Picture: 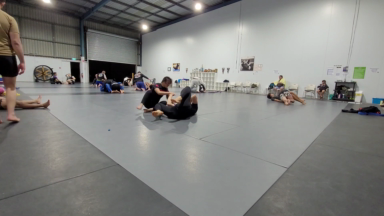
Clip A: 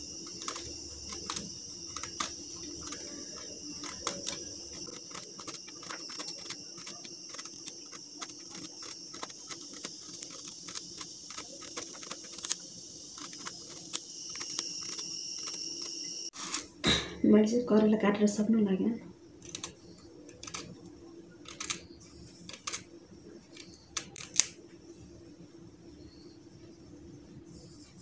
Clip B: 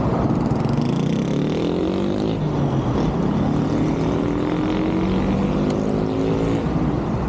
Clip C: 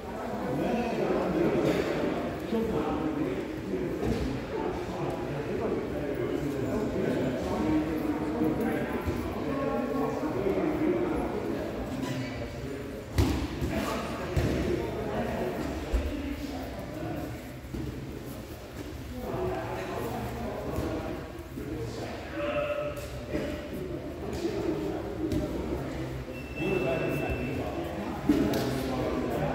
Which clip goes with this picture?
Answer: C